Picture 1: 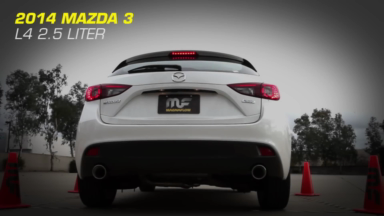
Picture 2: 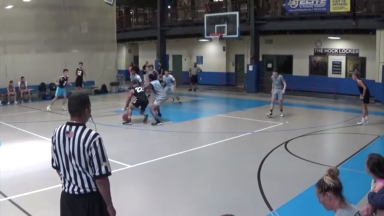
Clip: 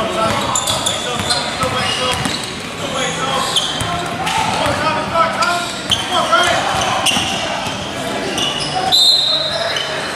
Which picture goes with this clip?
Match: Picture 2